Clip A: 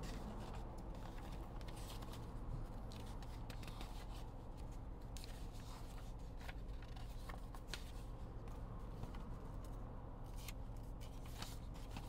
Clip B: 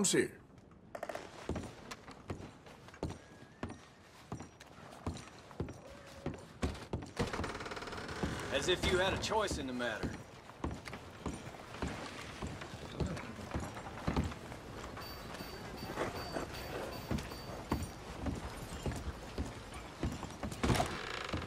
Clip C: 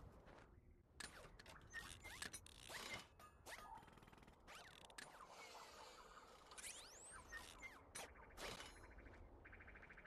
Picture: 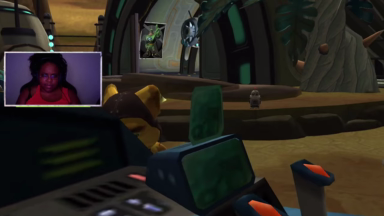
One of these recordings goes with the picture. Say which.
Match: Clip C